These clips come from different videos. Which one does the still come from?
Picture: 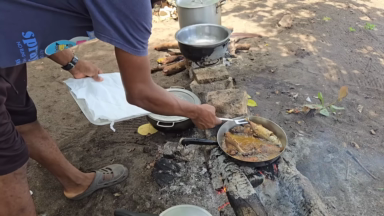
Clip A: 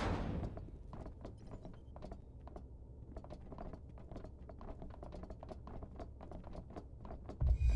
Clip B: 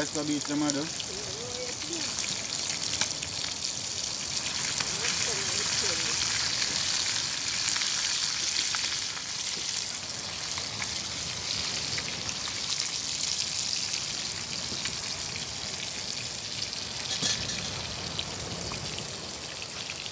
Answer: B